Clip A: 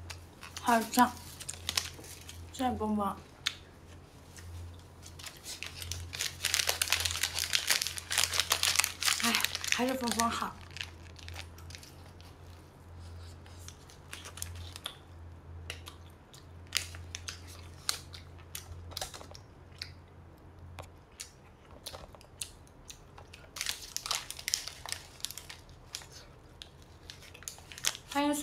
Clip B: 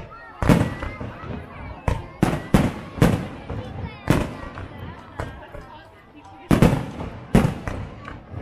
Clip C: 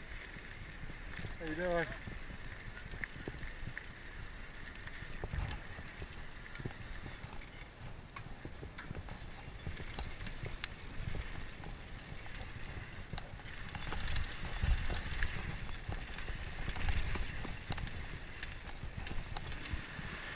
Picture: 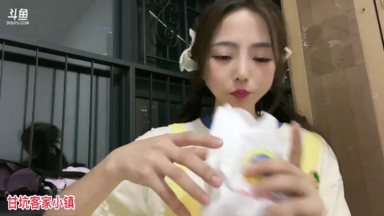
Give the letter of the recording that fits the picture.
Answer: A